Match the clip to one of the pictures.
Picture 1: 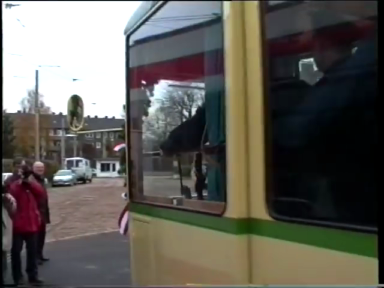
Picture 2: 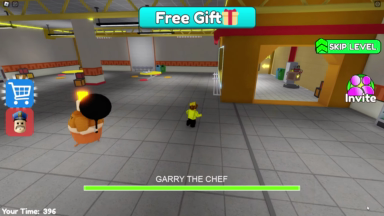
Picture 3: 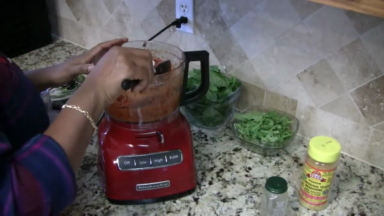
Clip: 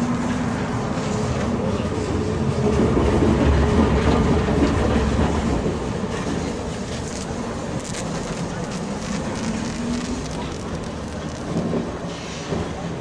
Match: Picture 1